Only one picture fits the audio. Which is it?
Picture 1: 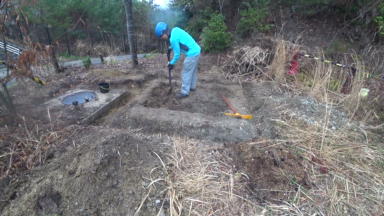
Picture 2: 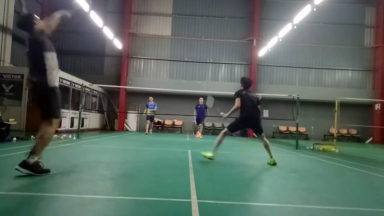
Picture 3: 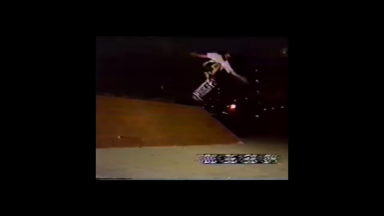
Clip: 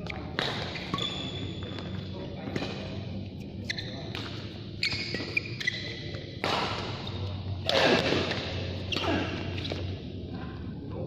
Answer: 2